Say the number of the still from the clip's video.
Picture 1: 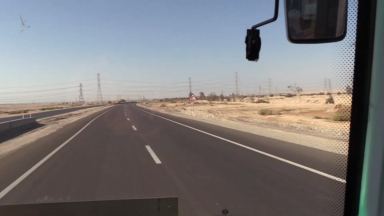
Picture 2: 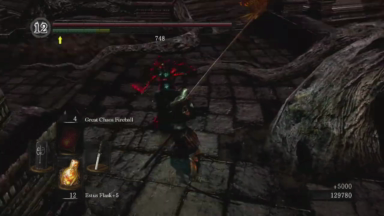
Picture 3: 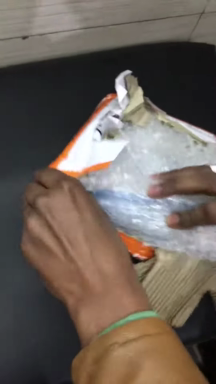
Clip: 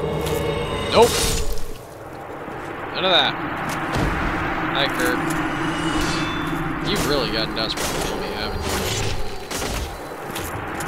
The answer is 2